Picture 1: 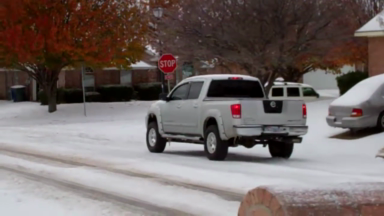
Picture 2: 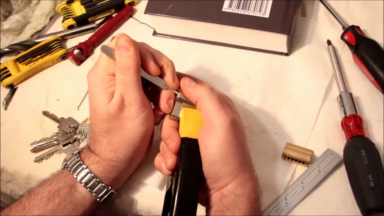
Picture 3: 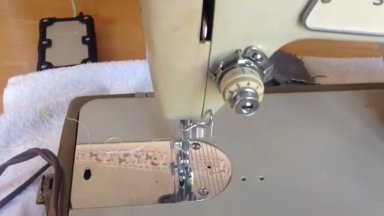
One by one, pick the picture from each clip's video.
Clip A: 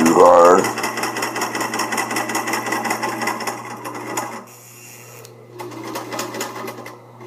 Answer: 3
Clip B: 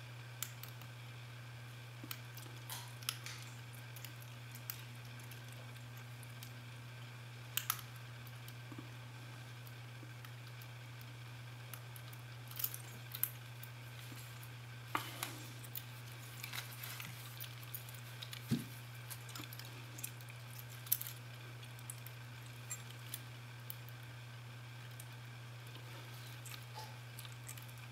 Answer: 2